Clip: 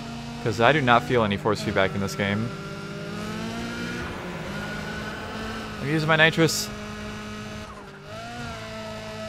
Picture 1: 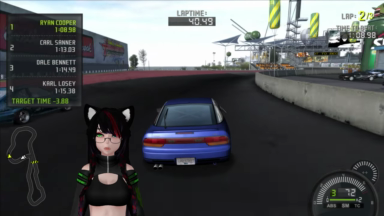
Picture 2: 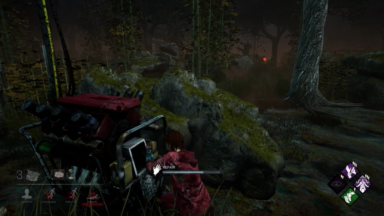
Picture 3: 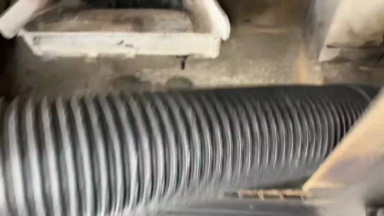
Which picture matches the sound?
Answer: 1